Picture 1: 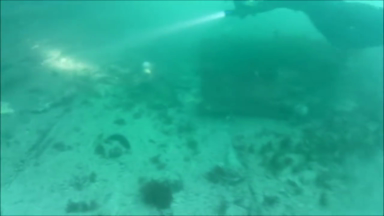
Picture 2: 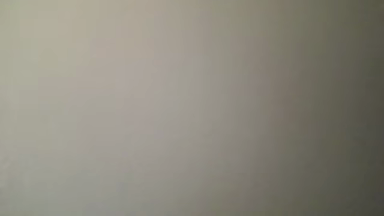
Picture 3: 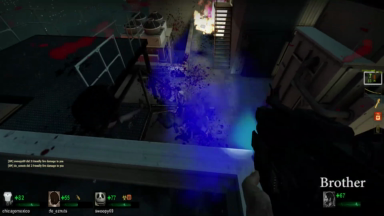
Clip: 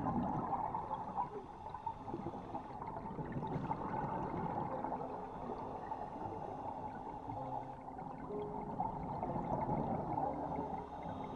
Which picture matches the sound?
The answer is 1